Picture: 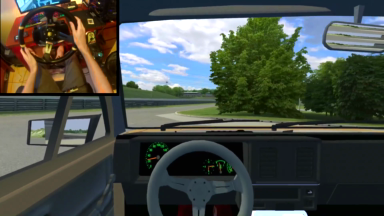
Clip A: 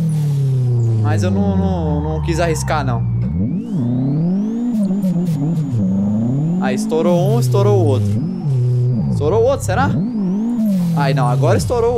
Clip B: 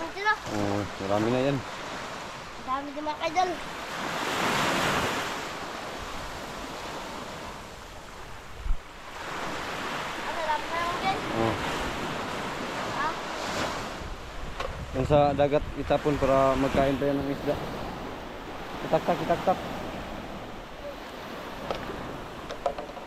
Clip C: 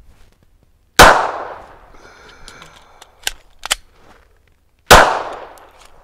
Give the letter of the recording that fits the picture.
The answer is A